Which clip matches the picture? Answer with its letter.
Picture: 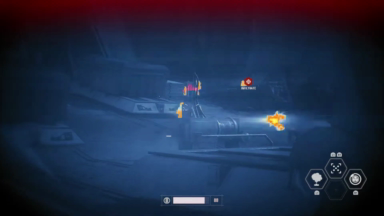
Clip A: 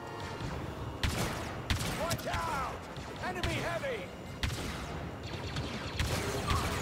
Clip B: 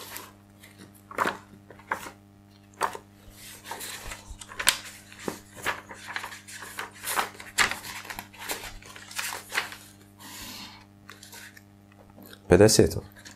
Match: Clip A